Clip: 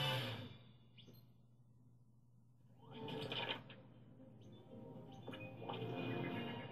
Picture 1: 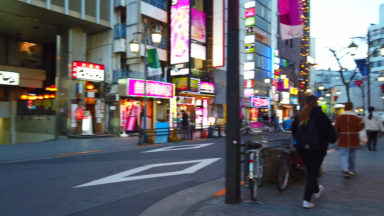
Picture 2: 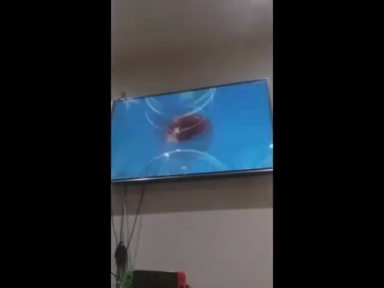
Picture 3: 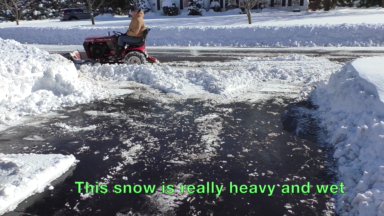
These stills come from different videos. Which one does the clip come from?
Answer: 2